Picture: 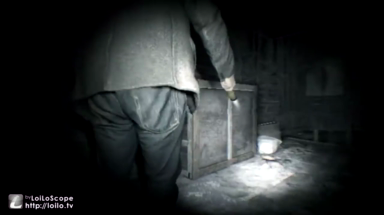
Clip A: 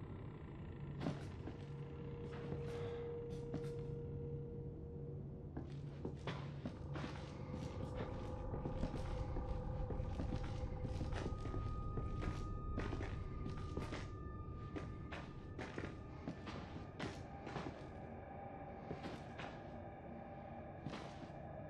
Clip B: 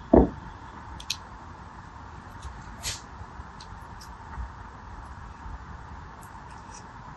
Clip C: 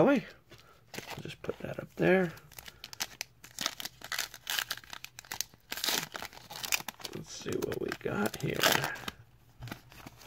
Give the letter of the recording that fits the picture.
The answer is A